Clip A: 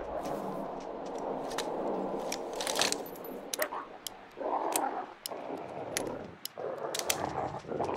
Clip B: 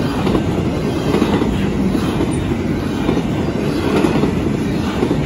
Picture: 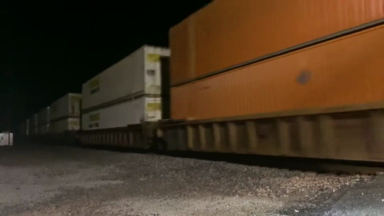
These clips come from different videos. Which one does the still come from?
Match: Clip B